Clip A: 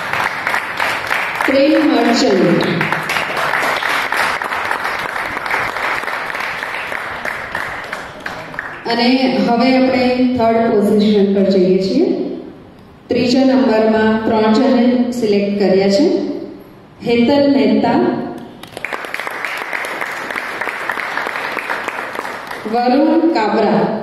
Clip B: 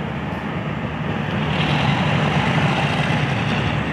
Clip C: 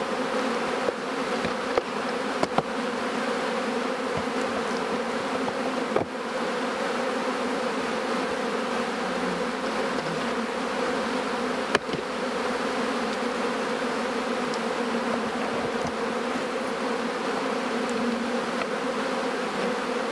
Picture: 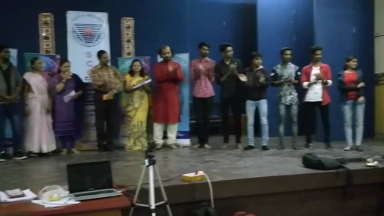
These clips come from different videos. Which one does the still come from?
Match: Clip A